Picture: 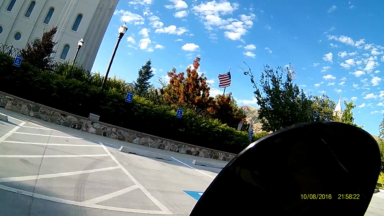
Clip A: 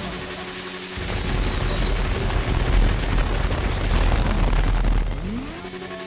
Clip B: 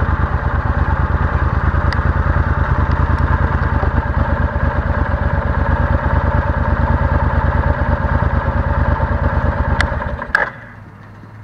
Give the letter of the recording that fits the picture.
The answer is B